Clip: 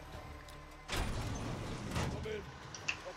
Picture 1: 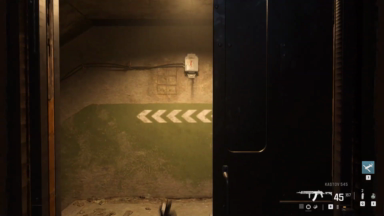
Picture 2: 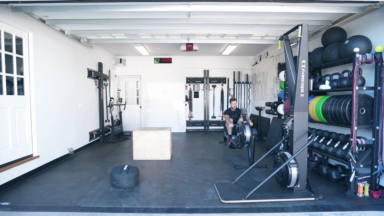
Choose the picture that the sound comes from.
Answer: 1